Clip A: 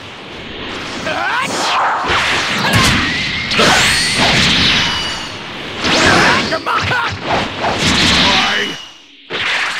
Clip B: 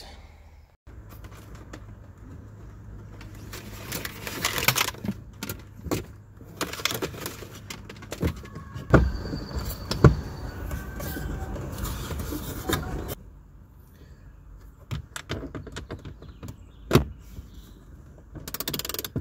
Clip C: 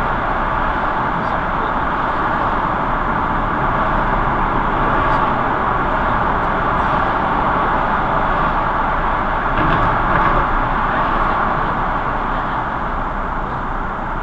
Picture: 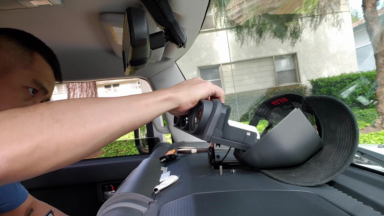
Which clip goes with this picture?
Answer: B